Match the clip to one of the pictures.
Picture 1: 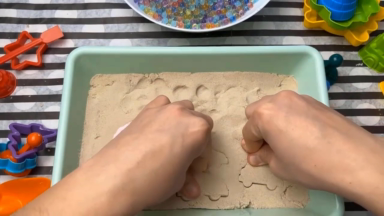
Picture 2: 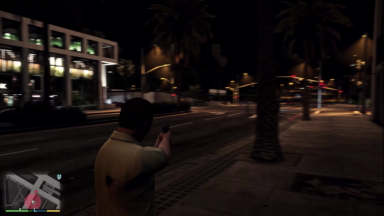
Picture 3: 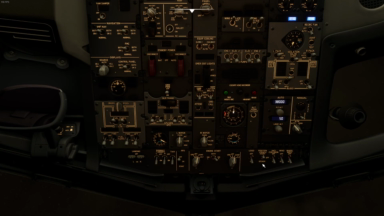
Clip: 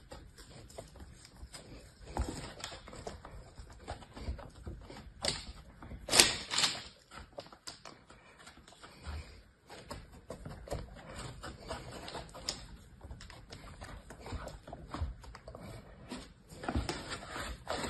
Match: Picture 1